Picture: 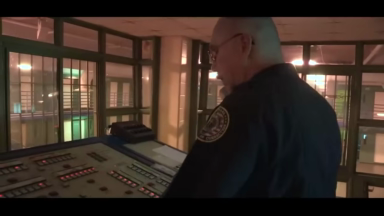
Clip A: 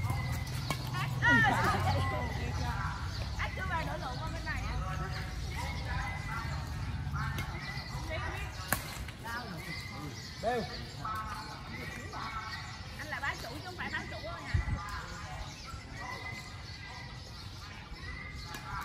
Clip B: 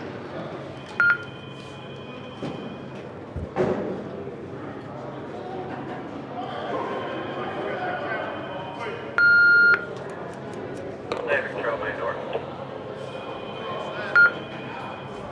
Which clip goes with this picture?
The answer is B